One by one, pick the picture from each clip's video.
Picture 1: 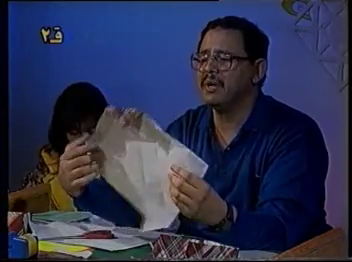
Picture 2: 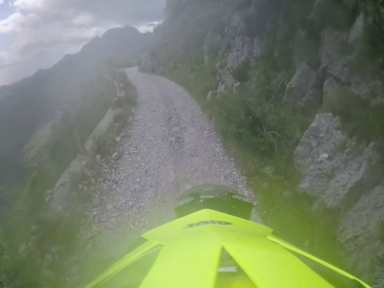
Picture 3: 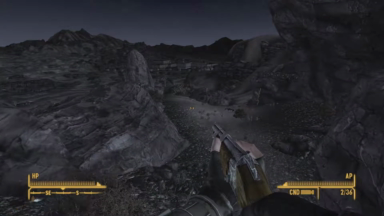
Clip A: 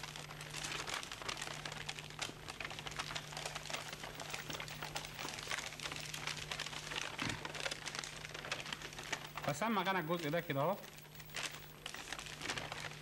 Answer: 1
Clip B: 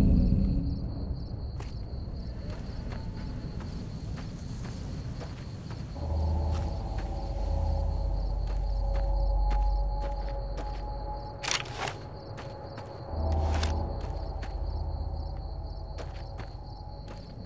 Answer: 3